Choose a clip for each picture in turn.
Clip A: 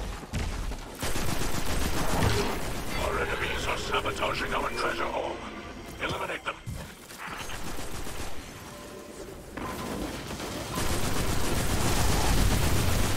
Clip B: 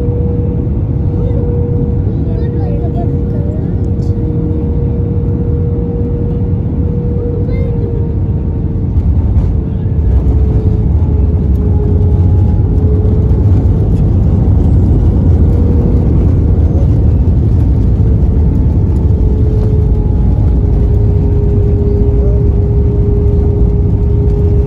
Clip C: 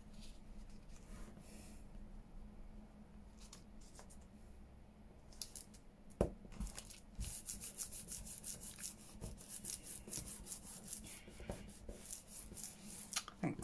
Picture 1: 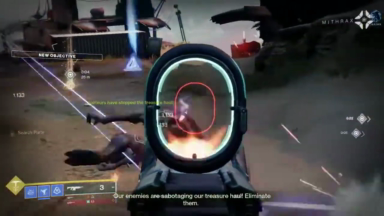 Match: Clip A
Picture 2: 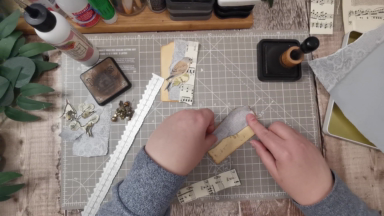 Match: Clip C